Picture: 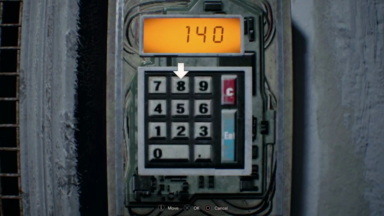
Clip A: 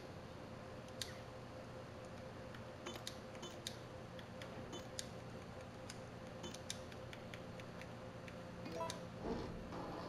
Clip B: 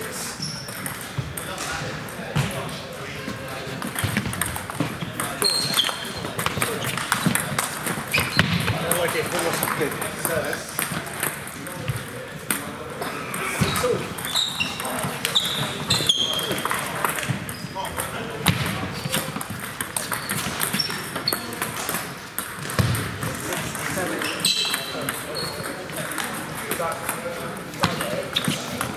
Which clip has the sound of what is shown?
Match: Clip A